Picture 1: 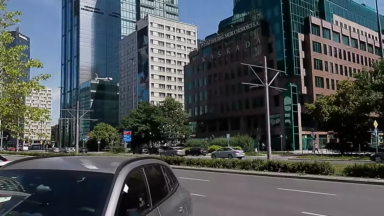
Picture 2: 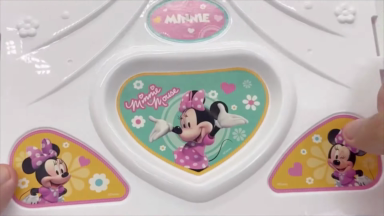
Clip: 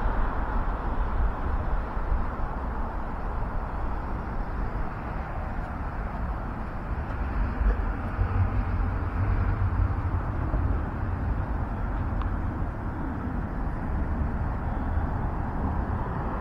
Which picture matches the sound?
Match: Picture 1